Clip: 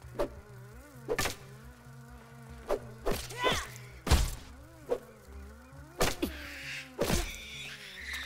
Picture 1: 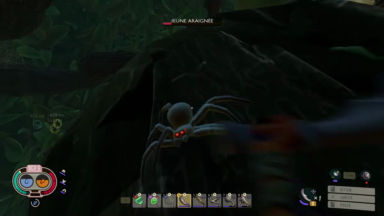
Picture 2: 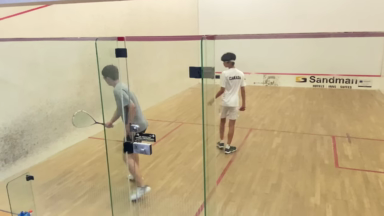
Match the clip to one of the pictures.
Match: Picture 1